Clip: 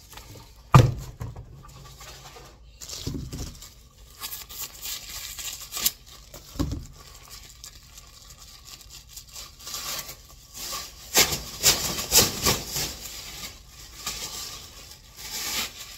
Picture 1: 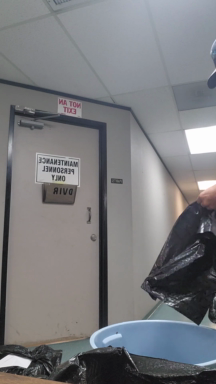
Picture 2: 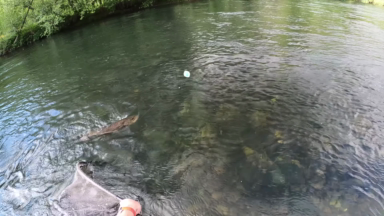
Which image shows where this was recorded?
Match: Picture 1